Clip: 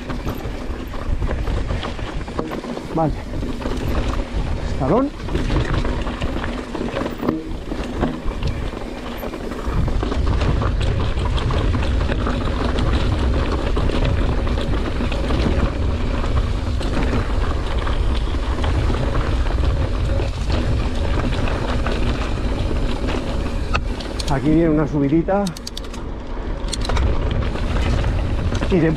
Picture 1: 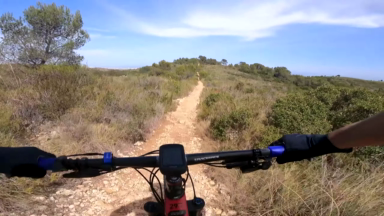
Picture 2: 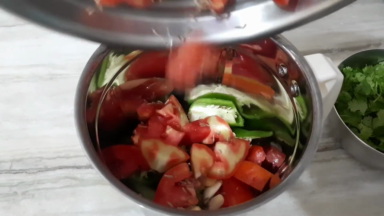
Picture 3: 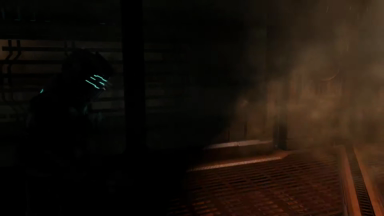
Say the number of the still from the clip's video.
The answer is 1